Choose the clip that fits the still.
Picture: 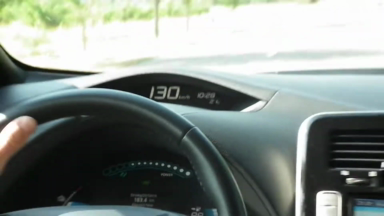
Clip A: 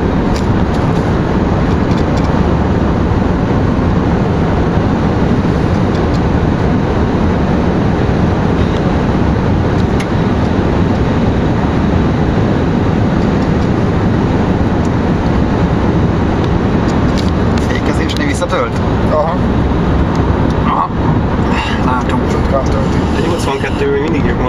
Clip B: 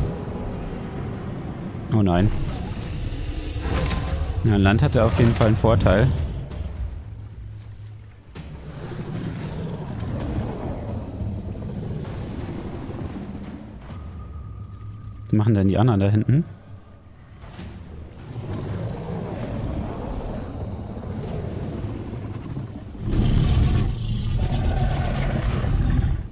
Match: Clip A